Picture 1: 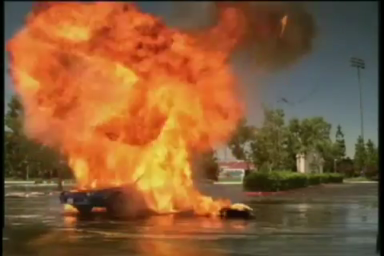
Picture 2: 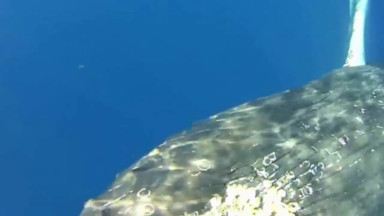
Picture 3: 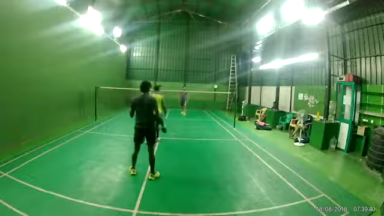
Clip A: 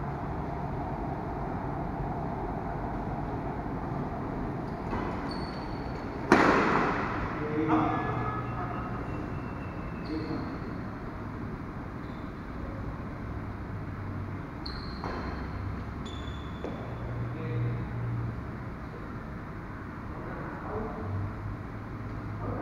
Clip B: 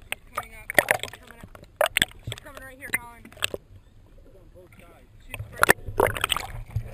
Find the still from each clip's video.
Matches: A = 3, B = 2